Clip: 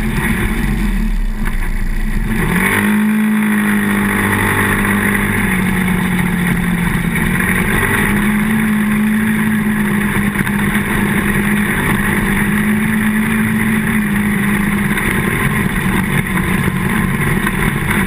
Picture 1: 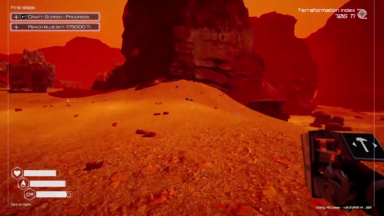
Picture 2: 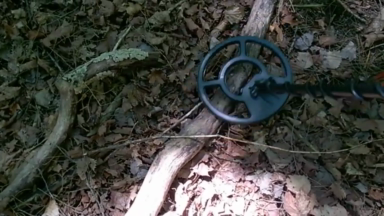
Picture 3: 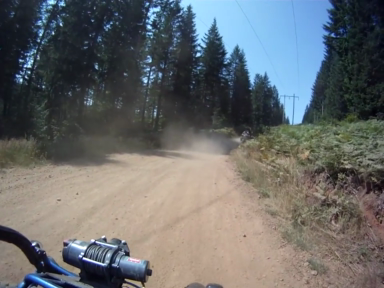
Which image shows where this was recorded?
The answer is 3